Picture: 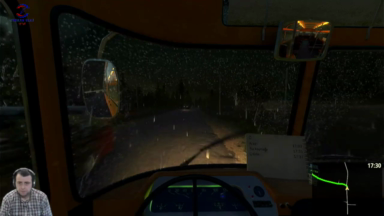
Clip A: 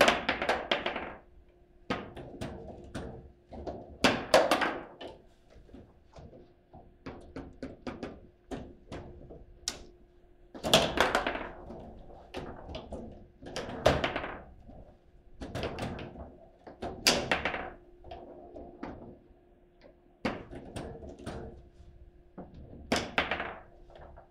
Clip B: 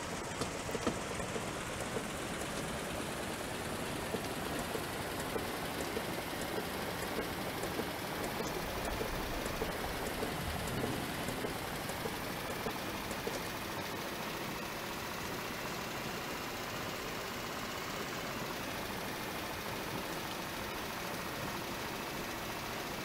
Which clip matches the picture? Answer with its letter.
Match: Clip B